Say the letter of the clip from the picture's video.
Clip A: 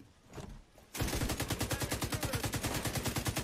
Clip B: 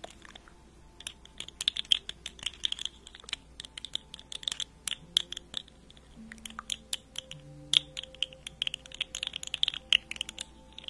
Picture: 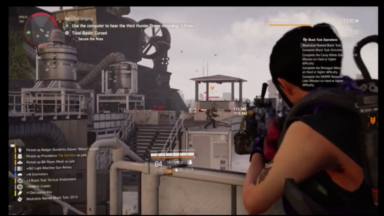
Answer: A